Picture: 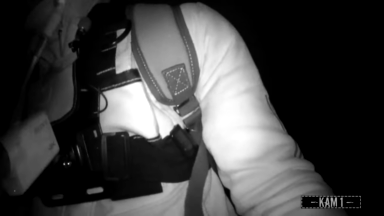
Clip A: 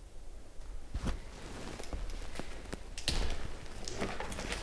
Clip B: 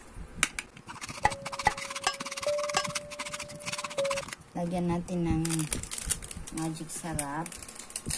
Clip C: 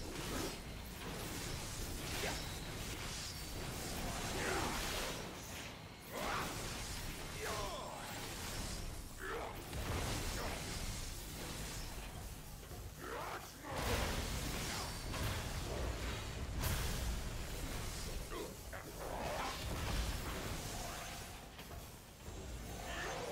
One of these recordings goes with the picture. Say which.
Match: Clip A